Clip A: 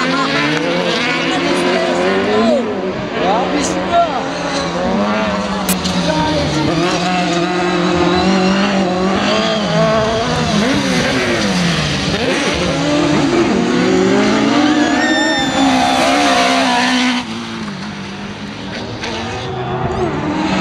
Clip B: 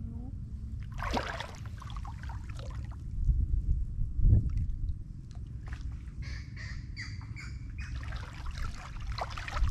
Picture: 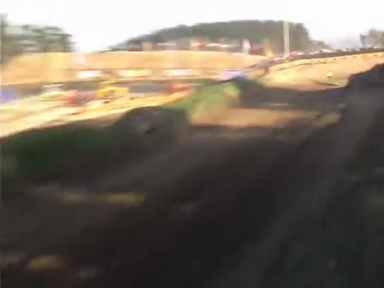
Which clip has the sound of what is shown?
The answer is A